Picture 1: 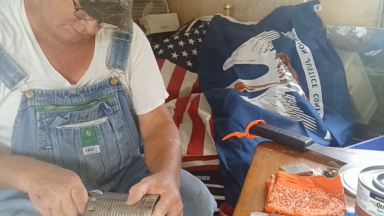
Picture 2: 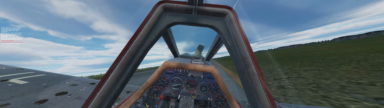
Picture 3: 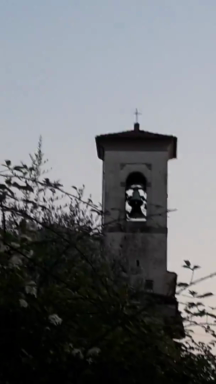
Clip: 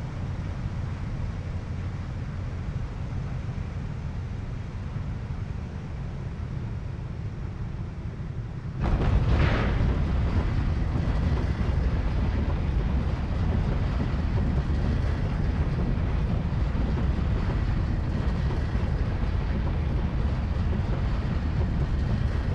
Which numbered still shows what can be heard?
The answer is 2